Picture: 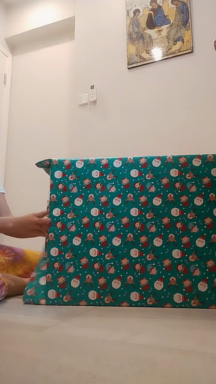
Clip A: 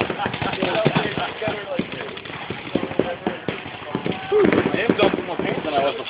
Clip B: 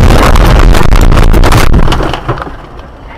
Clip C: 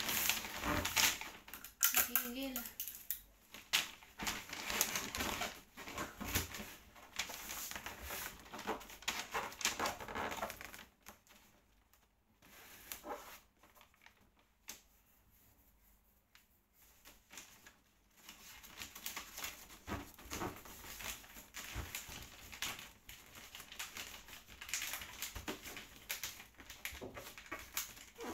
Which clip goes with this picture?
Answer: C